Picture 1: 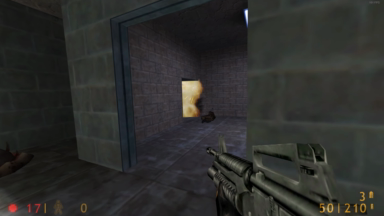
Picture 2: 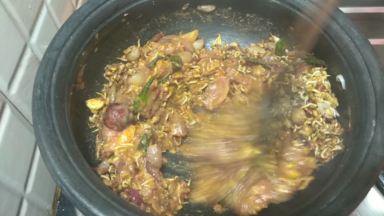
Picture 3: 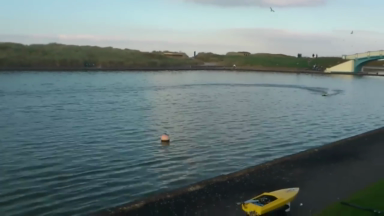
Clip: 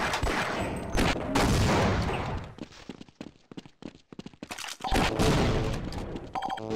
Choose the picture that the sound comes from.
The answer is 1